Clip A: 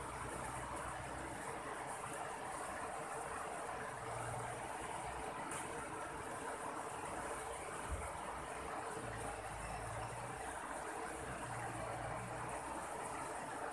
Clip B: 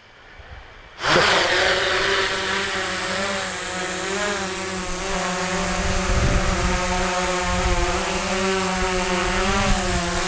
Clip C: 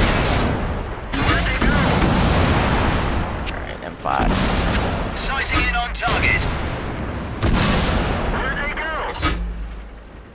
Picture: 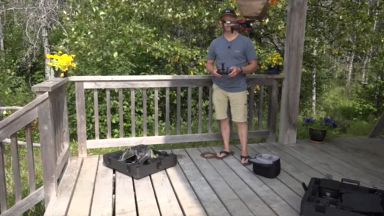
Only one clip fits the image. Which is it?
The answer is B